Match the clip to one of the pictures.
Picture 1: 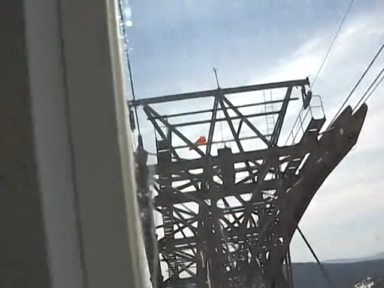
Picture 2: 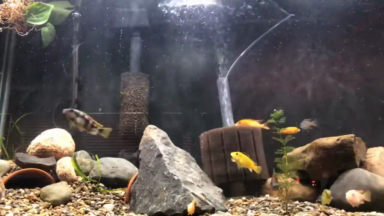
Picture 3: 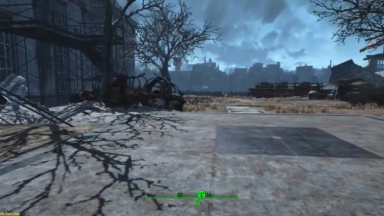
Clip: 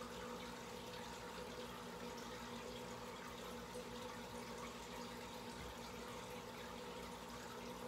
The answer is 2